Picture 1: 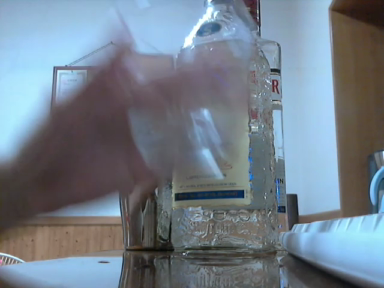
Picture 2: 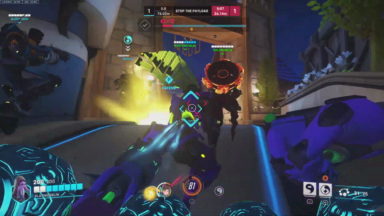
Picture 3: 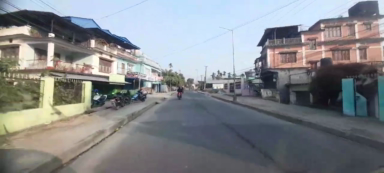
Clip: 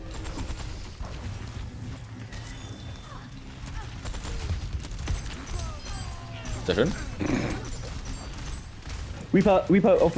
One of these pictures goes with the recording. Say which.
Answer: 2